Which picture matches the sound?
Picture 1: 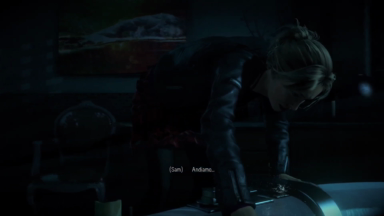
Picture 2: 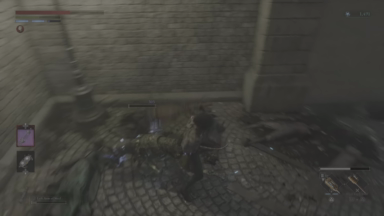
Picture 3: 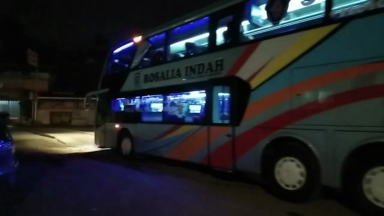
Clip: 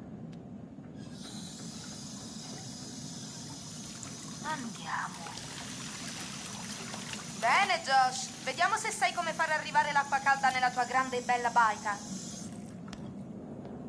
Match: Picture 1